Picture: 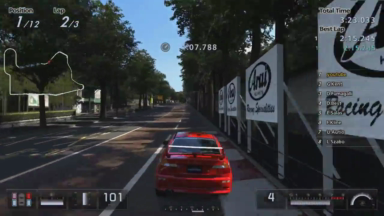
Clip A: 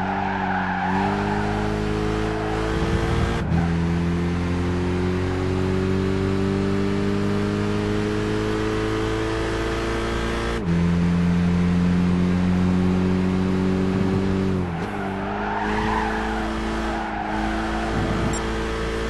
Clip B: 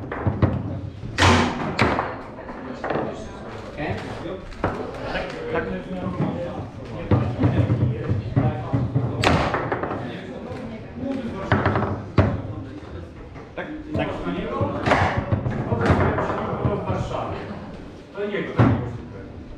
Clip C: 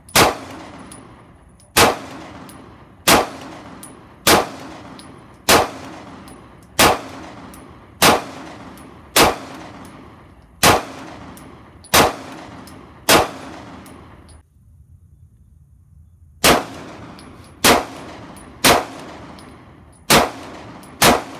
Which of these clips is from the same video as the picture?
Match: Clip A